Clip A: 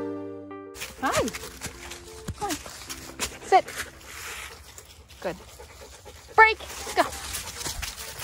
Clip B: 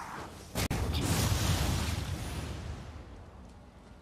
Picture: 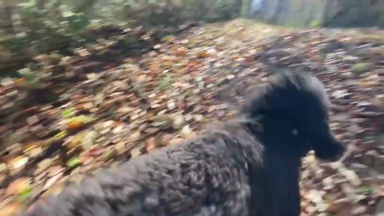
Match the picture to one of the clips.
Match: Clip A